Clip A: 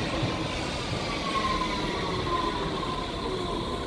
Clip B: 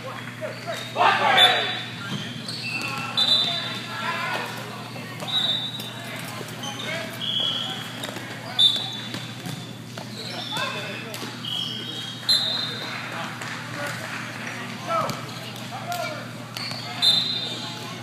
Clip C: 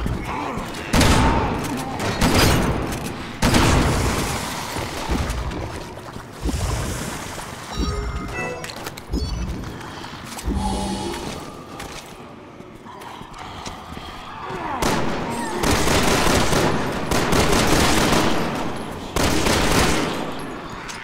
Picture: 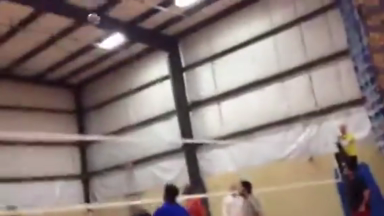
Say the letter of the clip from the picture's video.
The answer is B